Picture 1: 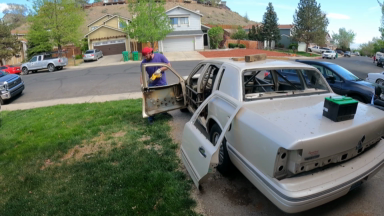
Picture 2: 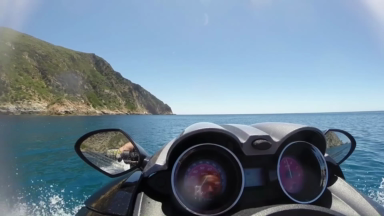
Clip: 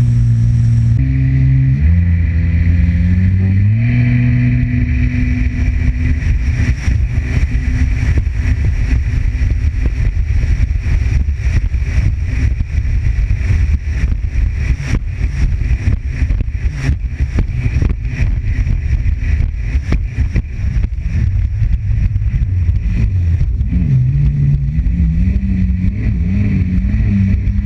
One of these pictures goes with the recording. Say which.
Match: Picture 2